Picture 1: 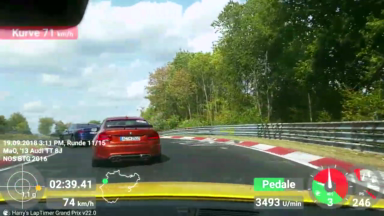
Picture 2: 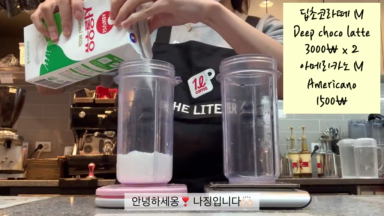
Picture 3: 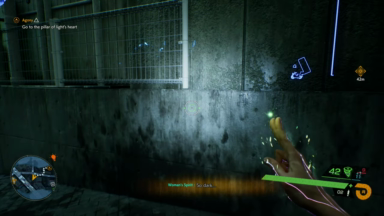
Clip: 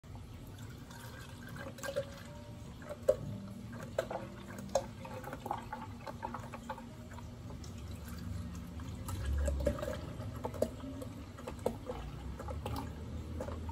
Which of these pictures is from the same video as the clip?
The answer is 2